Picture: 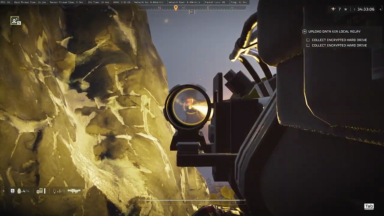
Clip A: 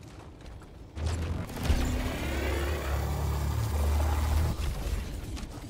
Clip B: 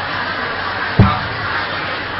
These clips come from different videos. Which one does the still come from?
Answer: A